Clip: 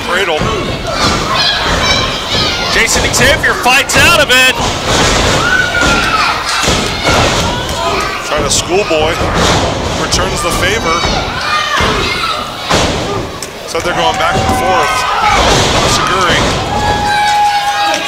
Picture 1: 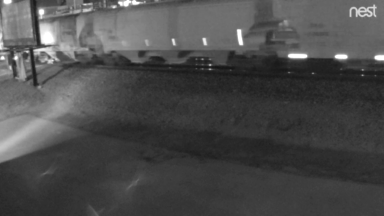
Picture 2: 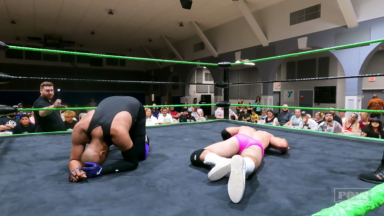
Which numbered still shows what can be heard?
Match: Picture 2